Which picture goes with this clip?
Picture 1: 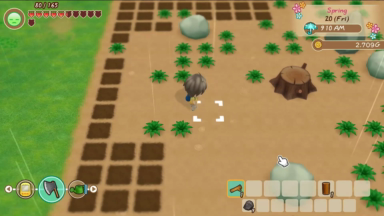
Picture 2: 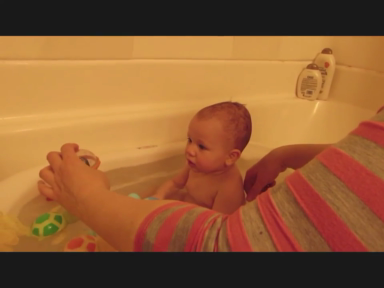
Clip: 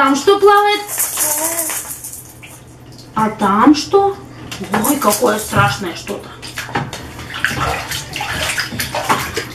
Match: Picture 2